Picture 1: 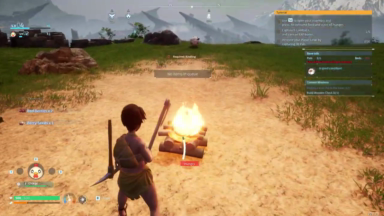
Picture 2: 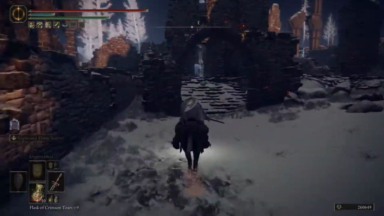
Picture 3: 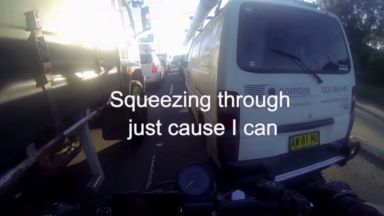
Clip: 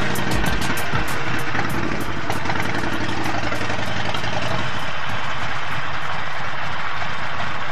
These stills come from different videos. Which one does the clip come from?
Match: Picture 3